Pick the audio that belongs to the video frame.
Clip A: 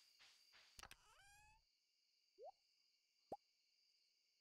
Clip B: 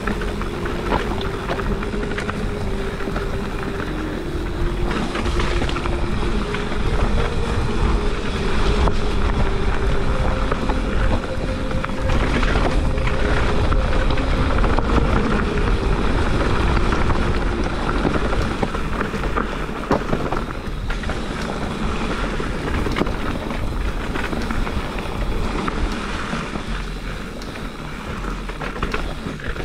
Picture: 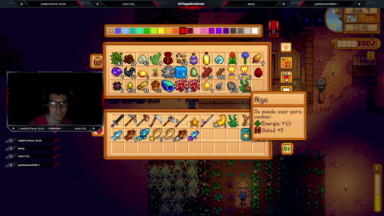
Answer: A